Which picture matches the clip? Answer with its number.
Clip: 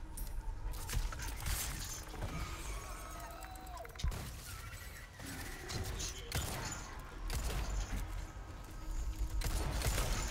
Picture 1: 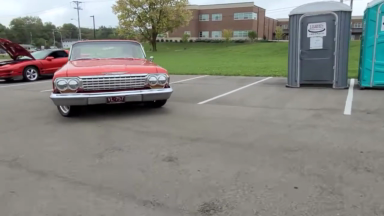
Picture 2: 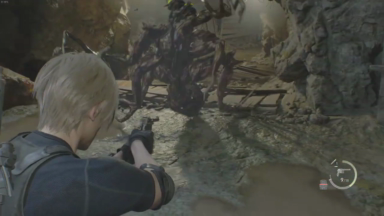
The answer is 2